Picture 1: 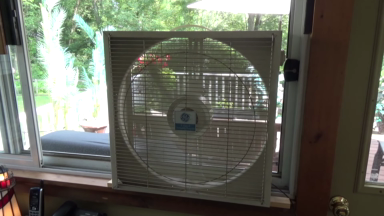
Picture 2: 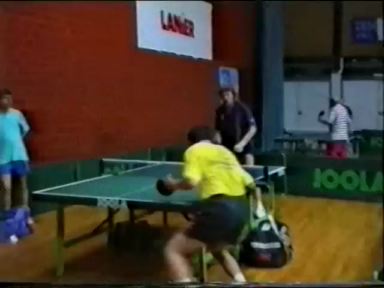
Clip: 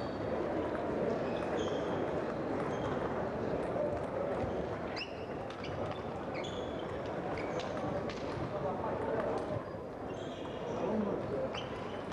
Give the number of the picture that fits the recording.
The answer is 2